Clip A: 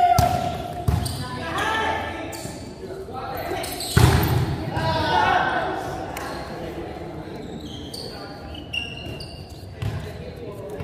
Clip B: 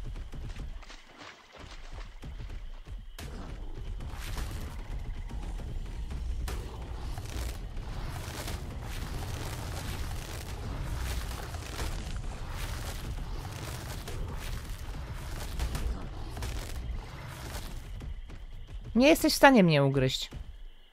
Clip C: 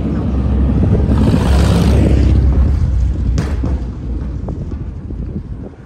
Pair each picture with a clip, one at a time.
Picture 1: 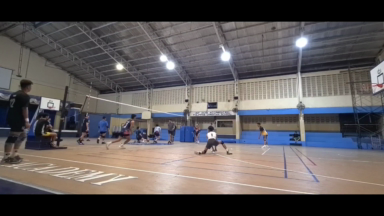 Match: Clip A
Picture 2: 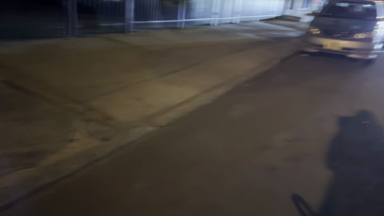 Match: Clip C